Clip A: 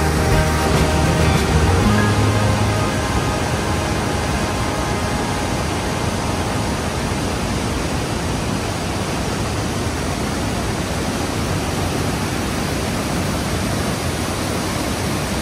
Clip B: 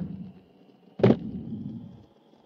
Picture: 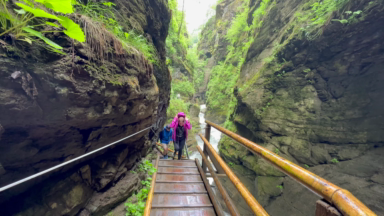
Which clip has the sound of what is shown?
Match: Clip A